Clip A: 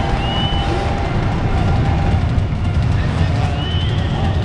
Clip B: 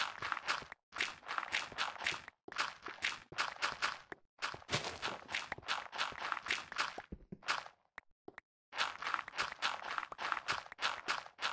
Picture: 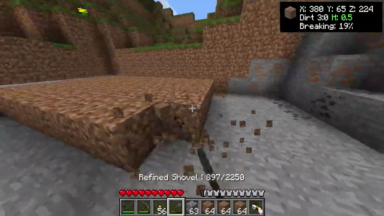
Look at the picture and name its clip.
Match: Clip B